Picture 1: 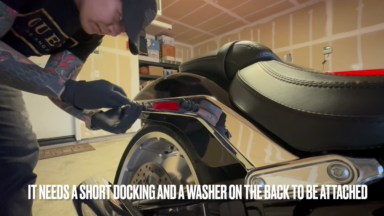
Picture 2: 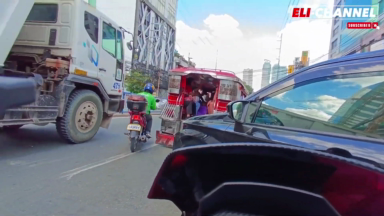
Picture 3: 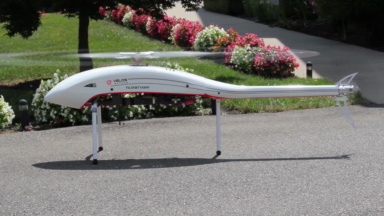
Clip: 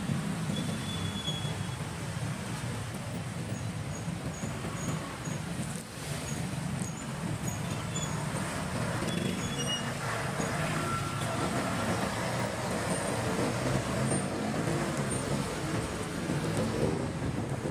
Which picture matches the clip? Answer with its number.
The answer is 2